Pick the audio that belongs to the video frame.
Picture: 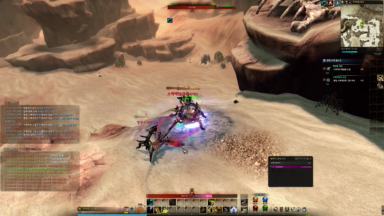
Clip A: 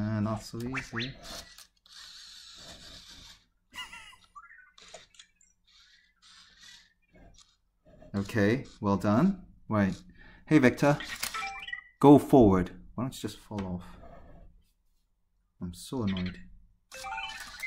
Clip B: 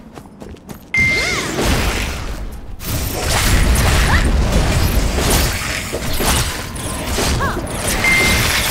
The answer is B